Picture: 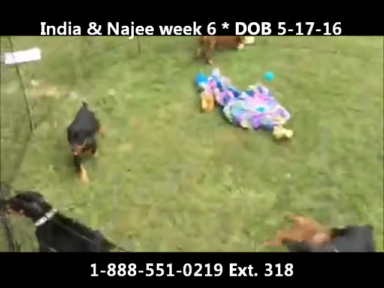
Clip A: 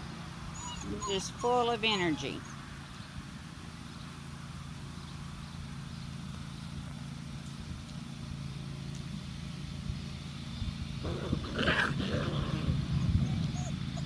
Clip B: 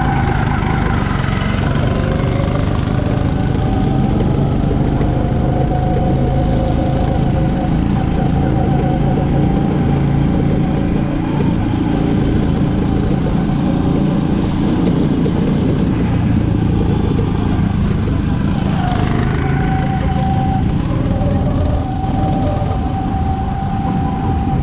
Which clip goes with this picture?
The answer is A